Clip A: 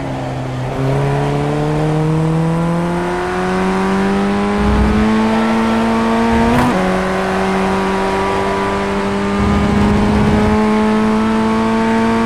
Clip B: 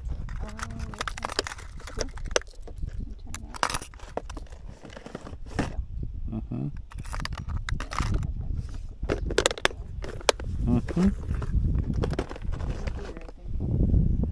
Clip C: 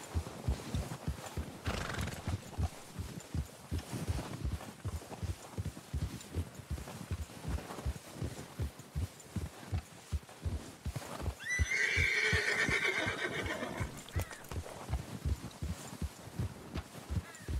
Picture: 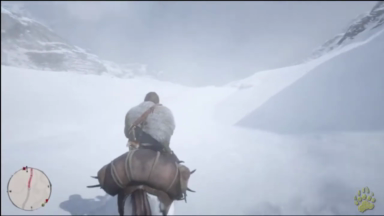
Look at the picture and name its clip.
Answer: C